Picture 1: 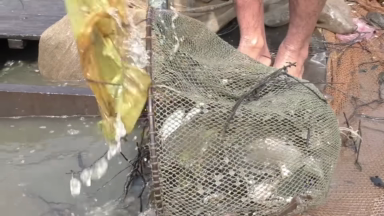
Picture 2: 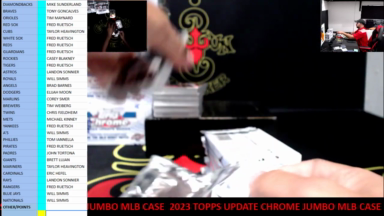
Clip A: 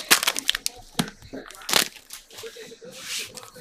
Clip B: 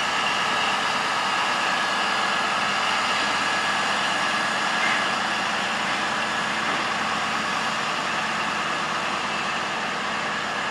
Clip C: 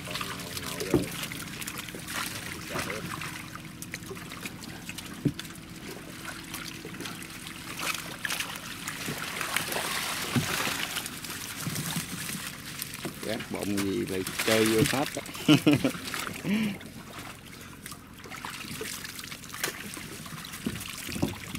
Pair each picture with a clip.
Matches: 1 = C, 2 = A